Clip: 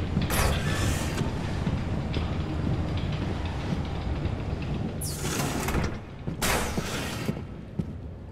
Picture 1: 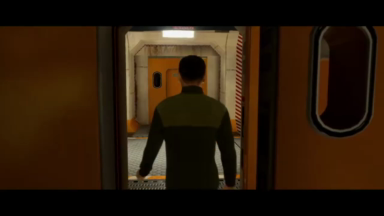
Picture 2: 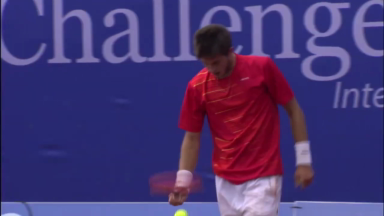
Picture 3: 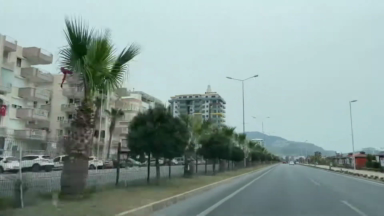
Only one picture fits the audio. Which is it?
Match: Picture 1